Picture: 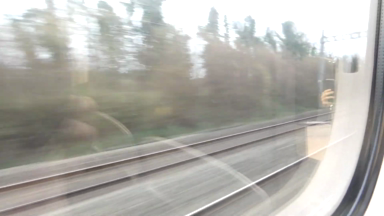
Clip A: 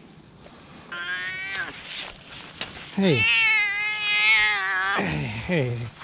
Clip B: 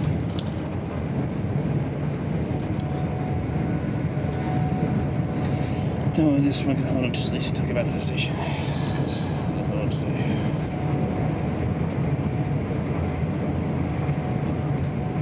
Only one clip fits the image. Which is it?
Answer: B